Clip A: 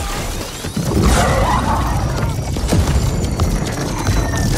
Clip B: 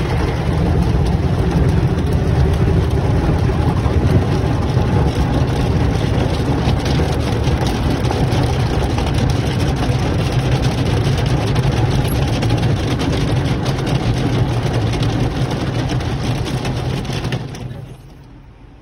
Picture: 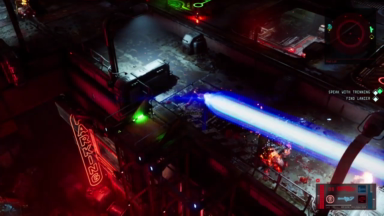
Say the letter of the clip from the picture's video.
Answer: A